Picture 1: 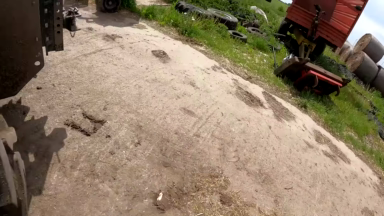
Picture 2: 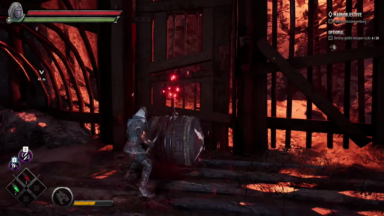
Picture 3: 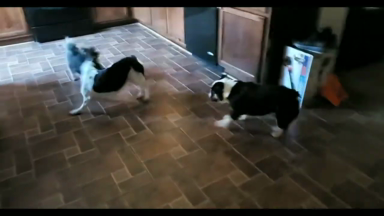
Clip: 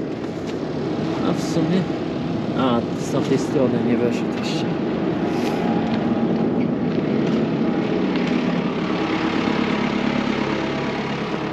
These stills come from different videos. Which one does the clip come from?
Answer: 1